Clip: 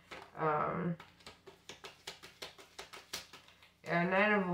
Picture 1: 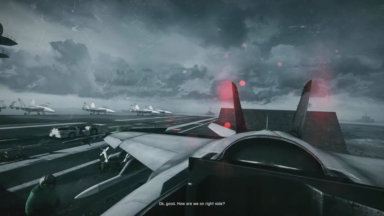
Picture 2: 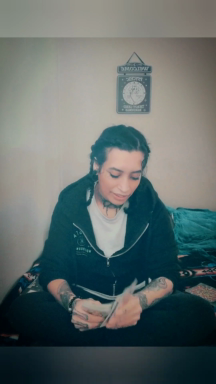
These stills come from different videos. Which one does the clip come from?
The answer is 2